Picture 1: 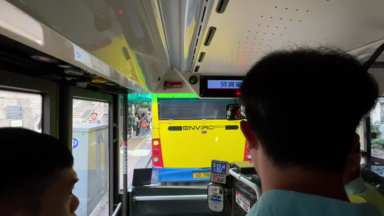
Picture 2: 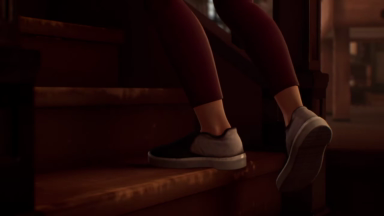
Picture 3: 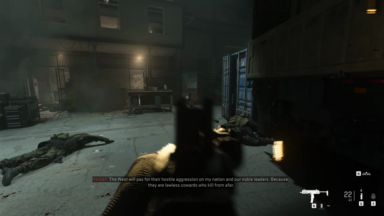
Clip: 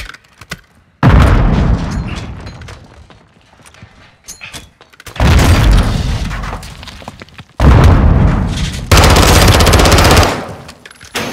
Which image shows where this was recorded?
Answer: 3